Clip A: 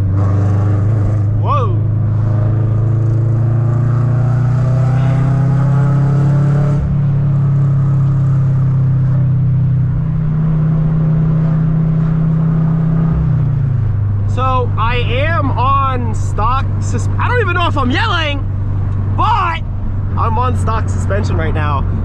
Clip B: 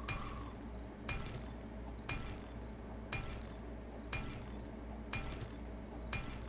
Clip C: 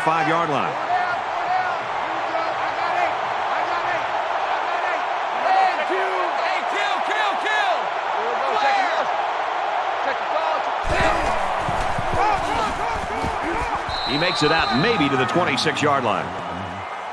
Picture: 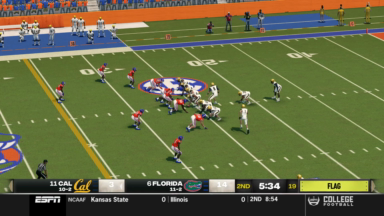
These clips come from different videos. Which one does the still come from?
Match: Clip C